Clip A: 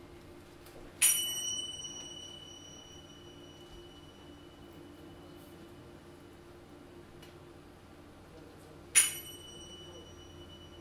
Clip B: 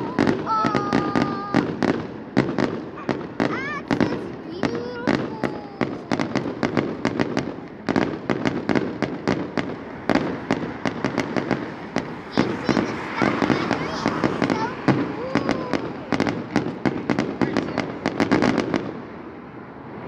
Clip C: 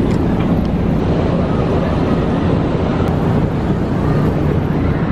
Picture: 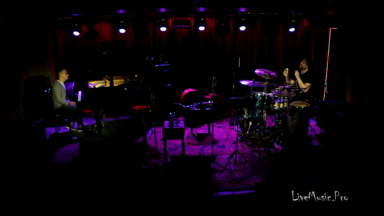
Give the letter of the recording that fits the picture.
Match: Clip A